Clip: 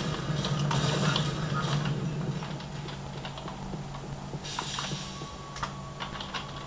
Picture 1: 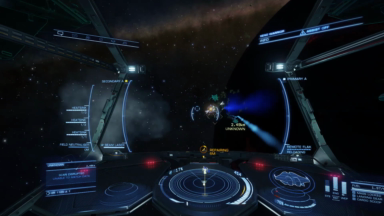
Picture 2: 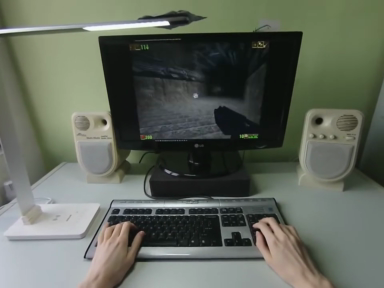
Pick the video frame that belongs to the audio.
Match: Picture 2